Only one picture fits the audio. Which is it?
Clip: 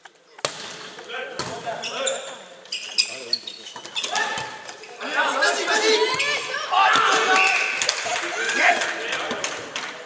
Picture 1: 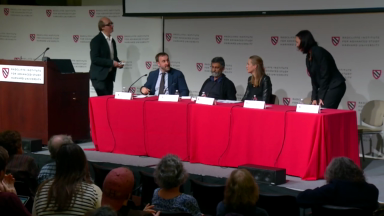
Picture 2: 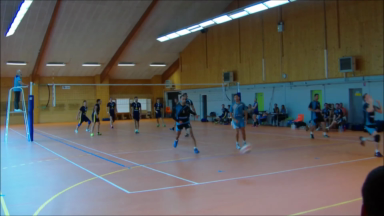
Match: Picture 2